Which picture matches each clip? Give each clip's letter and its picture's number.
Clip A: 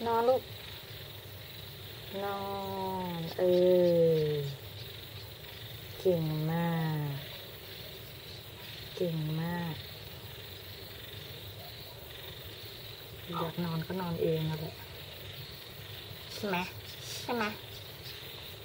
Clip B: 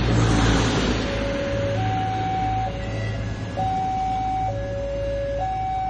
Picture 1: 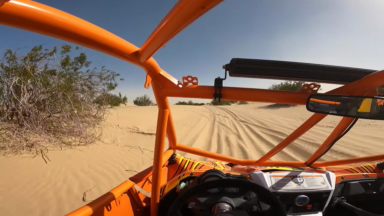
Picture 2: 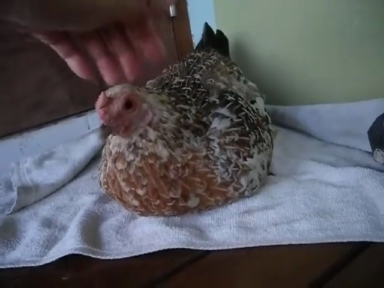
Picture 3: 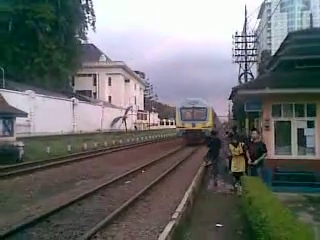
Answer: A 2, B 3